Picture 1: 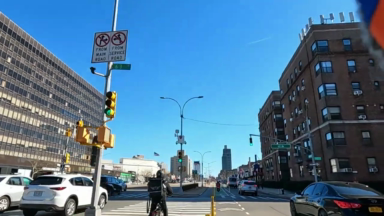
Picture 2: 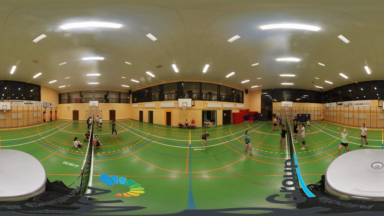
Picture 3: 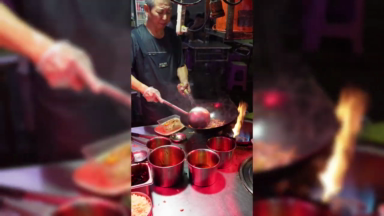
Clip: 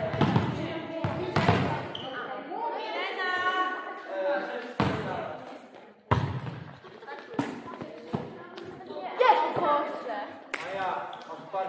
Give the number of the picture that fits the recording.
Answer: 2